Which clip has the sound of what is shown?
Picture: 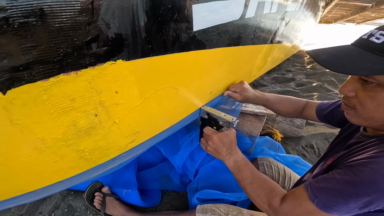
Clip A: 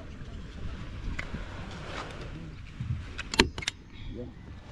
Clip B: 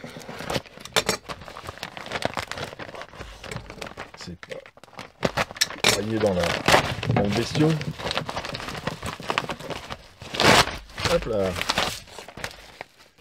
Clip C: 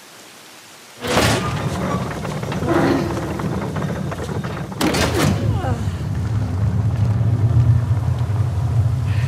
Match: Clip A